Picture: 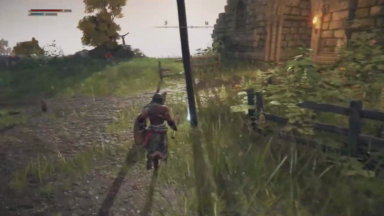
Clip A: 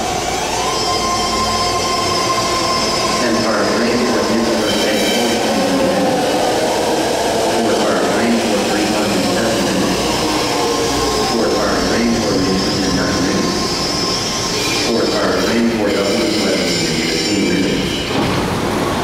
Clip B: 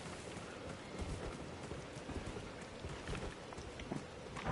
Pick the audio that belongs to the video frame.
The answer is B